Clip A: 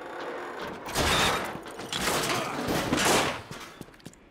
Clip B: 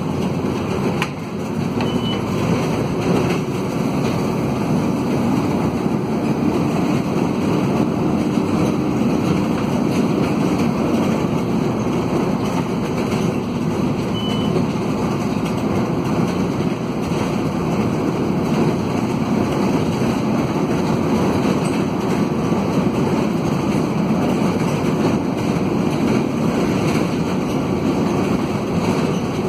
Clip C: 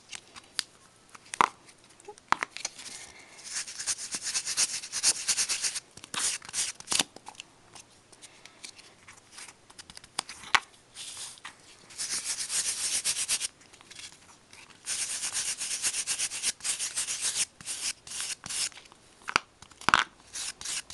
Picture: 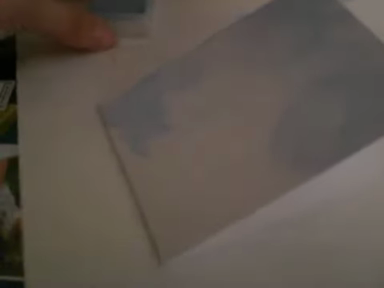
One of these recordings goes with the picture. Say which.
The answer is C